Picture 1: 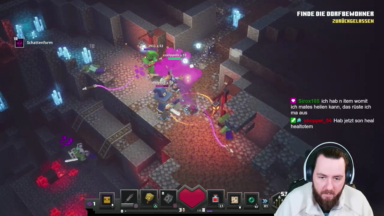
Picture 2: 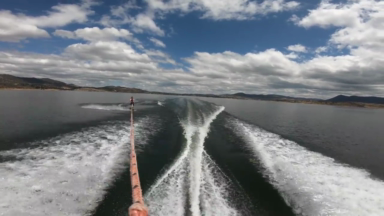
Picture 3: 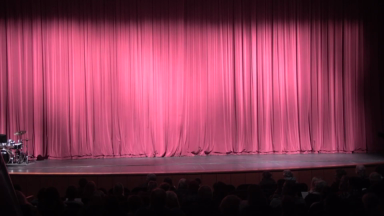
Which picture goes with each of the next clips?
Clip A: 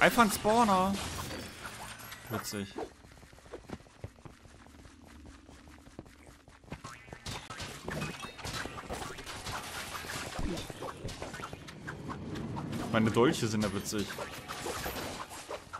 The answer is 1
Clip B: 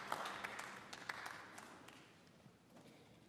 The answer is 3